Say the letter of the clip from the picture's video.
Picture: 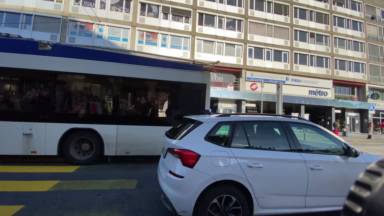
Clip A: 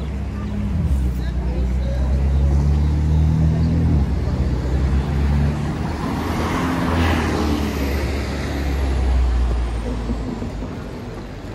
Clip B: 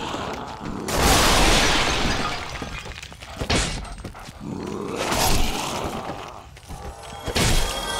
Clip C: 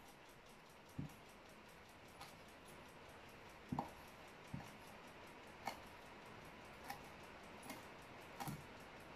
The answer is A